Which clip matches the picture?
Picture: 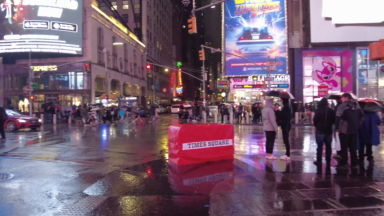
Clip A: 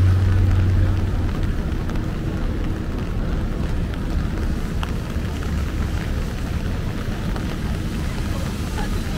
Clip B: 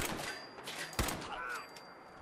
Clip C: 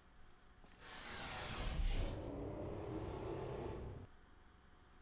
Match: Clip A